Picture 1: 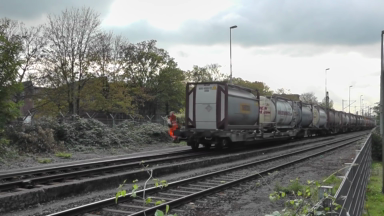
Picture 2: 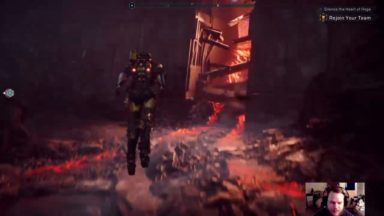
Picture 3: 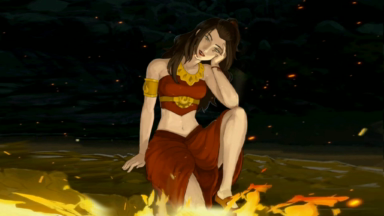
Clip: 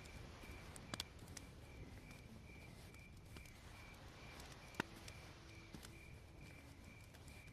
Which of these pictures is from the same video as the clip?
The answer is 3